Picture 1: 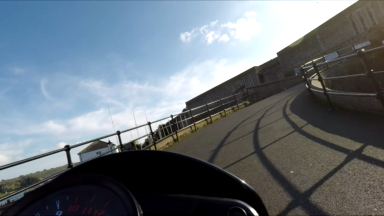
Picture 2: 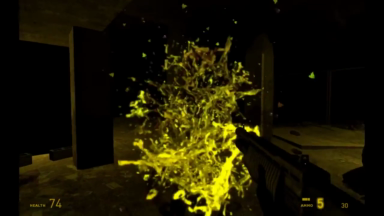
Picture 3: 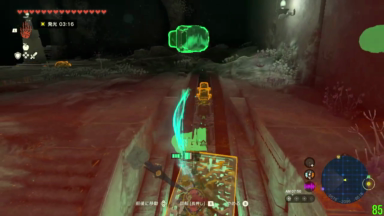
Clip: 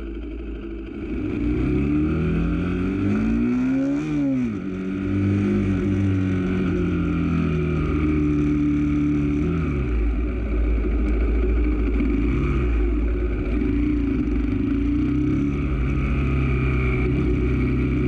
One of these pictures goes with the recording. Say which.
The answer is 1